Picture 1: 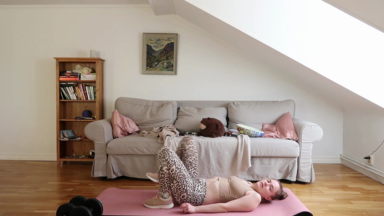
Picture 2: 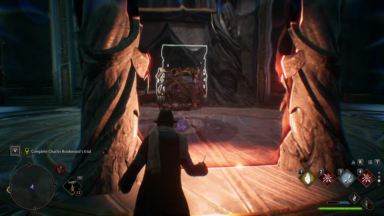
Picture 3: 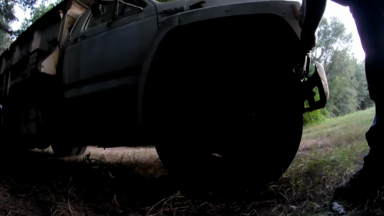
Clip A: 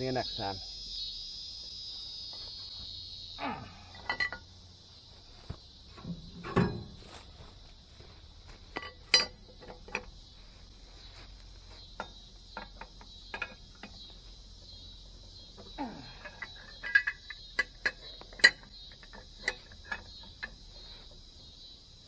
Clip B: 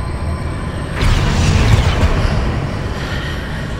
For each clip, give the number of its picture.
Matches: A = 3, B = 2